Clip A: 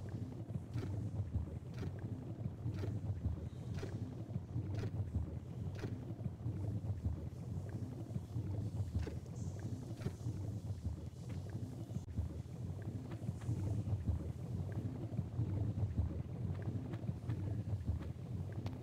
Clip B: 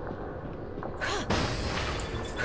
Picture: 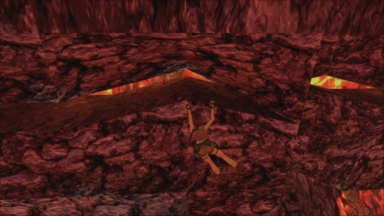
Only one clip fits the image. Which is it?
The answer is A